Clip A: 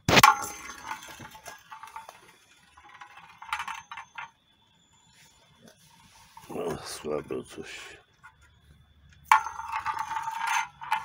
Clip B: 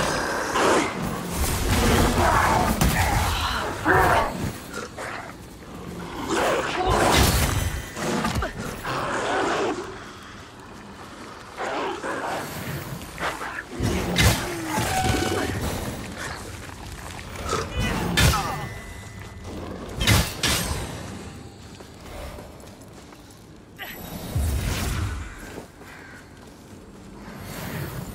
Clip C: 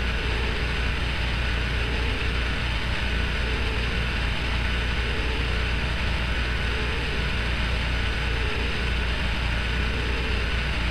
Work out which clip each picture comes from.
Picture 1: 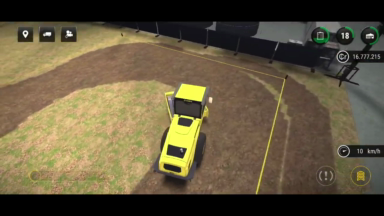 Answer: C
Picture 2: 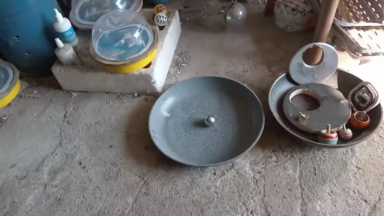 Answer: A